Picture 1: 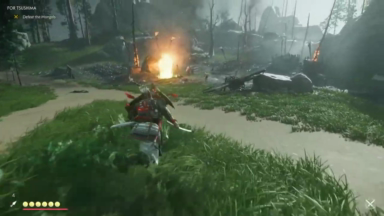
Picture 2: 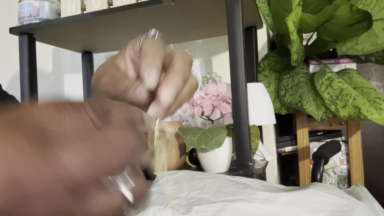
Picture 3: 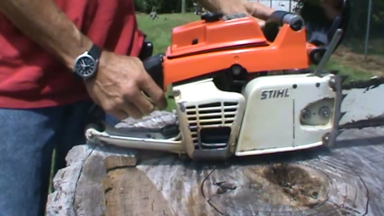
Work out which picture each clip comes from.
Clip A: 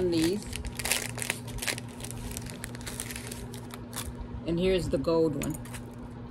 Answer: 2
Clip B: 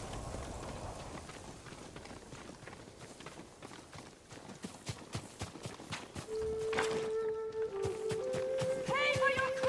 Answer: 1